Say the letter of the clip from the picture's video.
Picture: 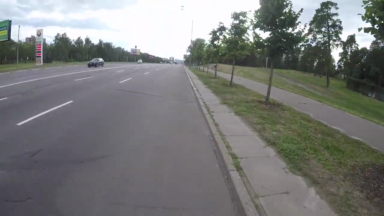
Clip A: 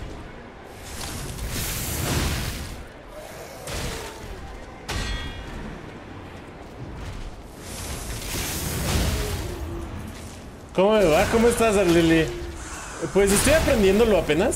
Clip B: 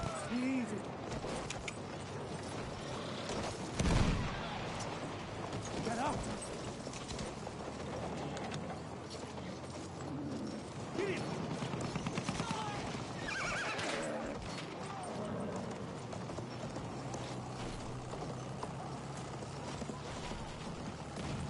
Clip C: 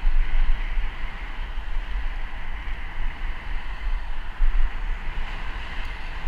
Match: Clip C